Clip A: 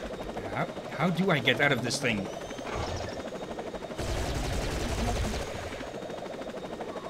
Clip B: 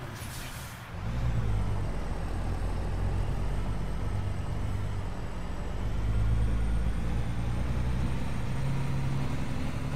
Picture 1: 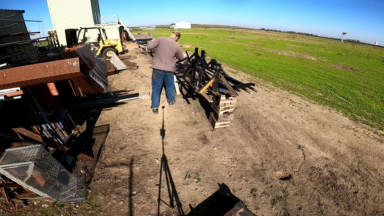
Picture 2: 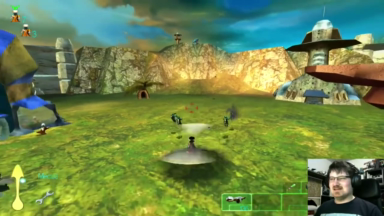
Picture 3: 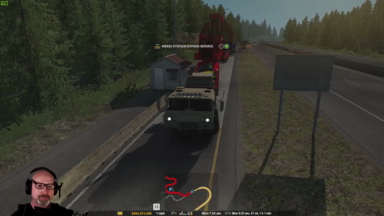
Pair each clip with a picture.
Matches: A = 2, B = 3